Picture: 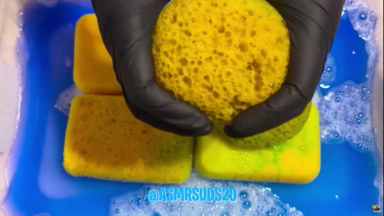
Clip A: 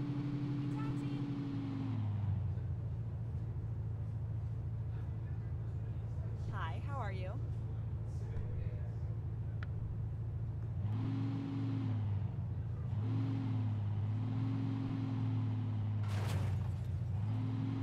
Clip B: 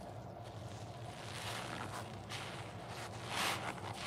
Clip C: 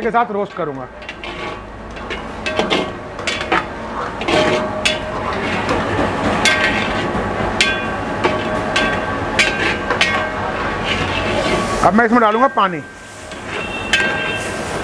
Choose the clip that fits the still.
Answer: B